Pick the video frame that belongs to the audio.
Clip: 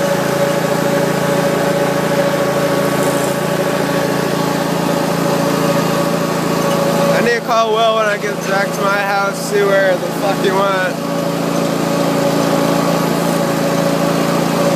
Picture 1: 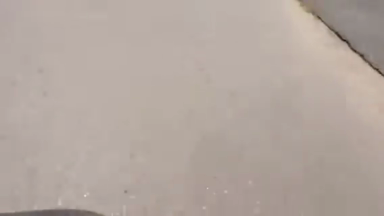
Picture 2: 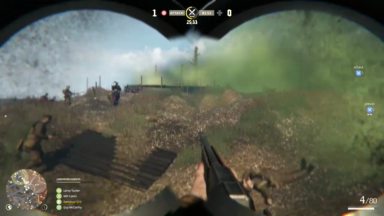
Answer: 1